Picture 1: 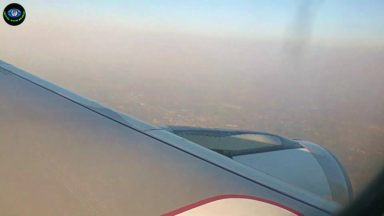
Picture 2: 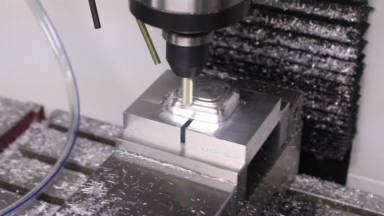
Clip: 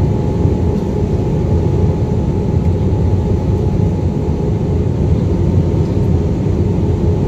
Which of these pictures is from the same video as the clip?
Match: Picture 1